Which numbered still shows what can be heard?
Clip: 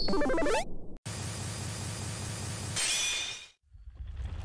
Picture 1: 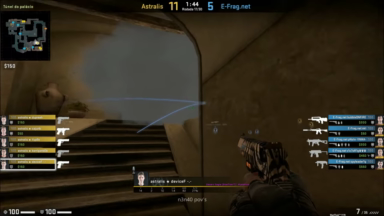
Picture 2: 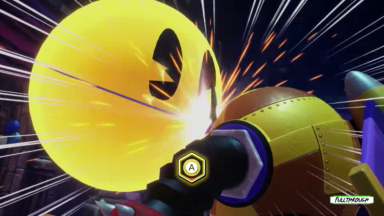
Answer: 2